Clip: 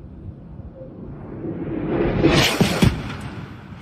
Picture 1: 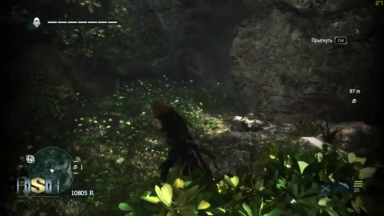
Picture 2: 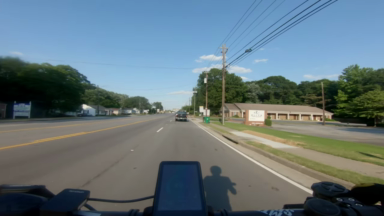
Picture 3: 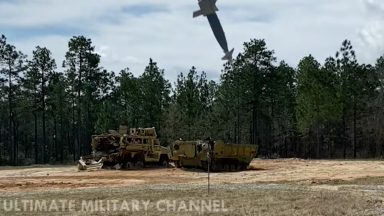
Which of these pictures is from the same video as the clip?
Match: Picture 3